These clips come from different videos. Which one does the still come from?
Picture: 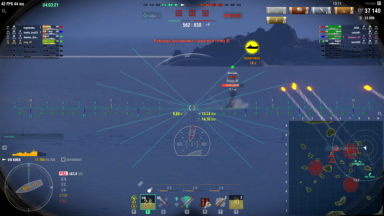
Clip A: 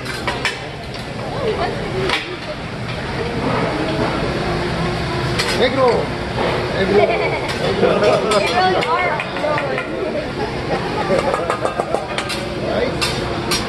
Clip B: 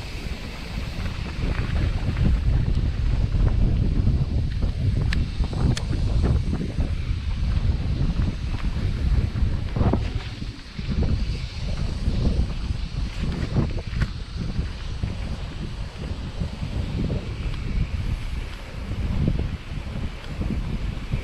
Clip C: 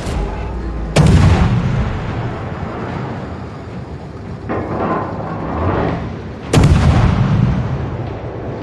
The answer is C